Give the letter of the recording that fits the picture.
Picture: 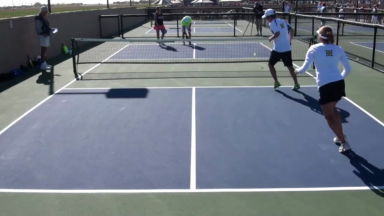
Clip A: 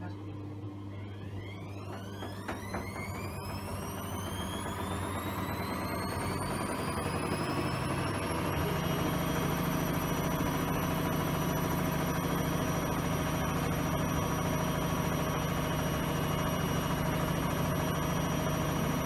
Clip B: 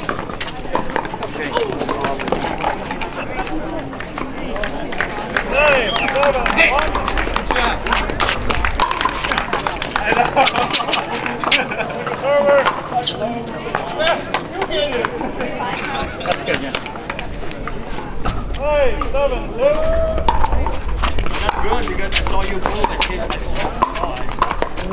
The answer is B